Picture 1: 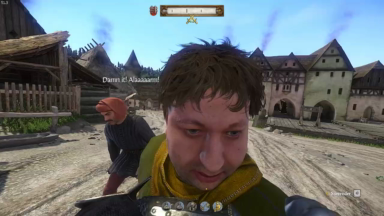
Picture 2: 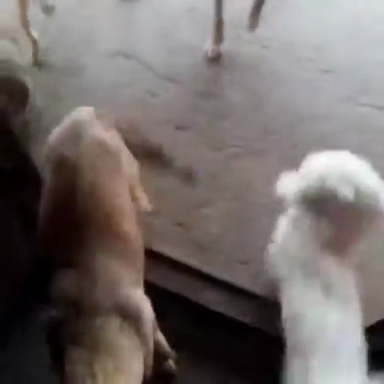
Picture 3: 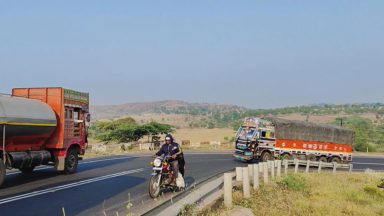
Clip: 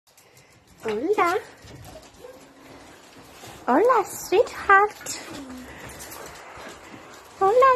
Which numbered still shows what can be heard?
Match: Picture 2